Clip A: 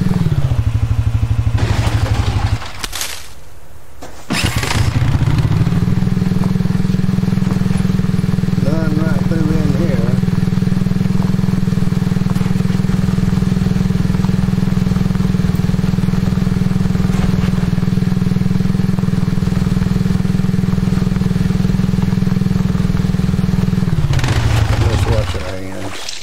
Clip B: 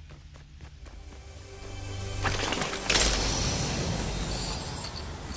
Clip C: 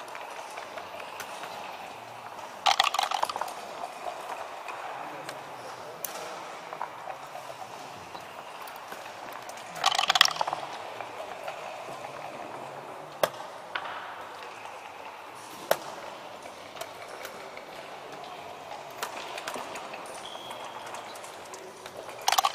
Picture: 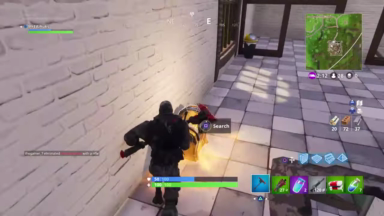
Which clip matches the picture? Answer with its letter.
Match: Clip B